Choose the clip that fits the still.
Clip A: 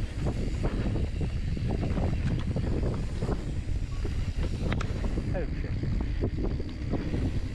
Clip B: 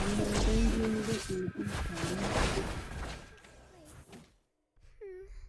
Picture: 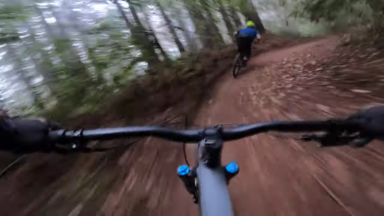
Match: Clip A